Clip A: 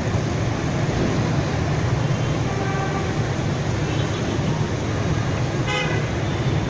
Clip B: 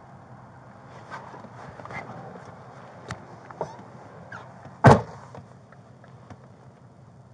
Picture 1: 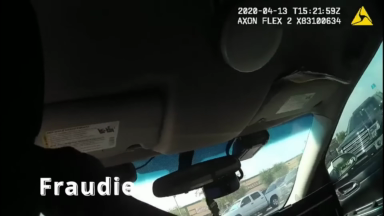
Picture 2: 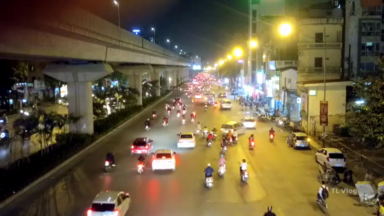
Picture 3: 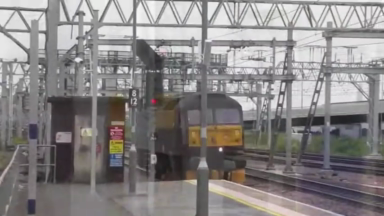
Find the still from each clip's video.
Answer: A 2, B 1